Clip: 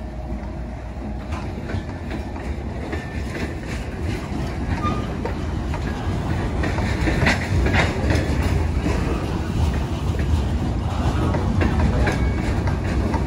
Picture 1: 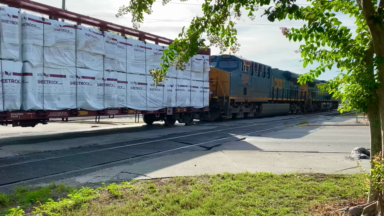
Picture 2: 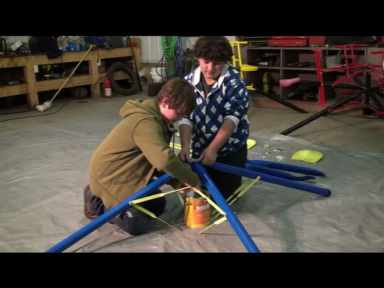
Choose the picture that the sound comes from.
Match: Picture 1